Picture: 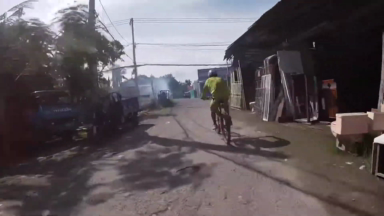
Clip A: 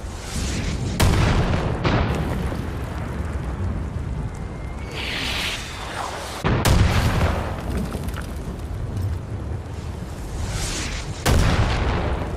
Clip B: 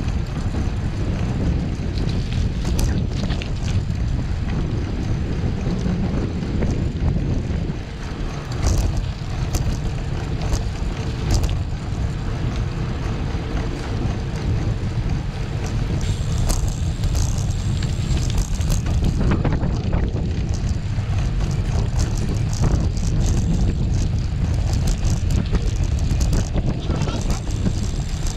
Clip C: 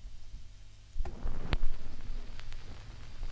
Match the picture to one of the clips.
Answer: B